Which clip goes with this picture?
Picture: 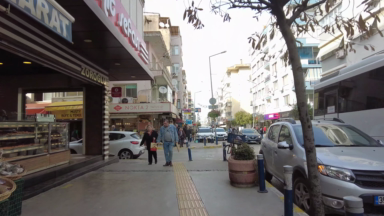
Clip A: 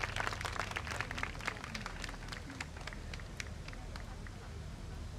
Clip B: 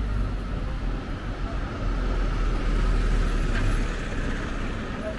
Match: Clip B